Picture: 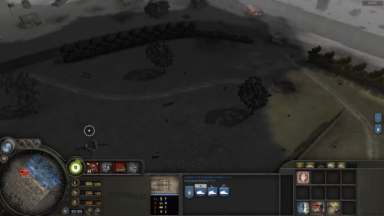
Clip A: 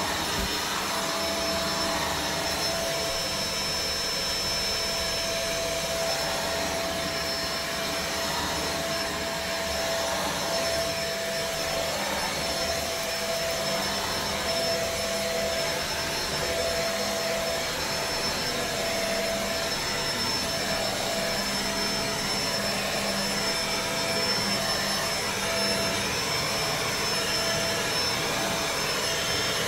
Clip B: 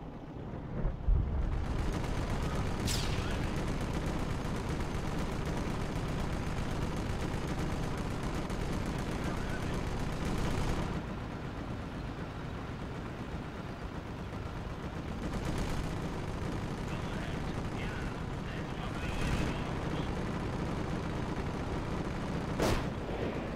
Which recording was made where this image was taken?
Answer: B